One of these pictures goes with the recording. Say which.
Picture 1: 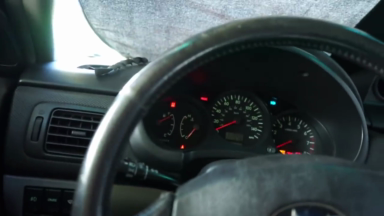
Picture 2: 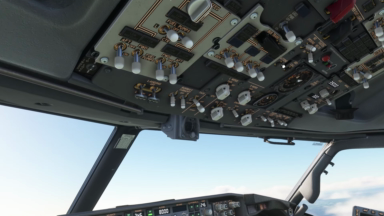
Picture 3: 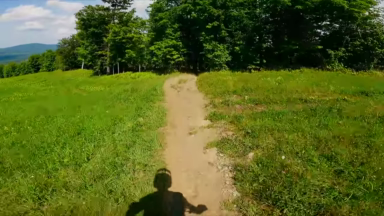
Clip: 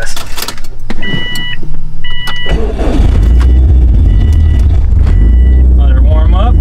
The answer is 1